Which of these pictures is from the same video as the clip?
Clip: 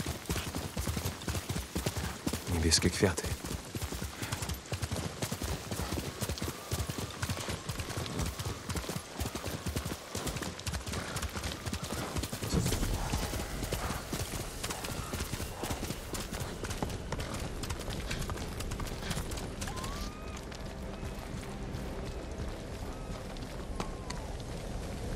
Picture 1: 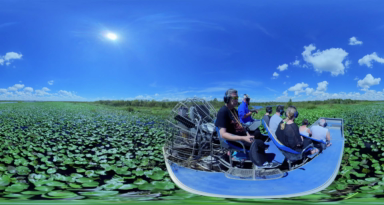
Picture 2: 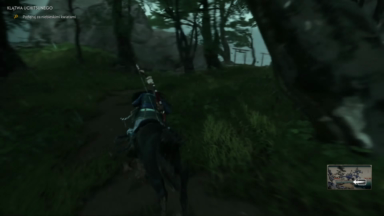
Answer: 2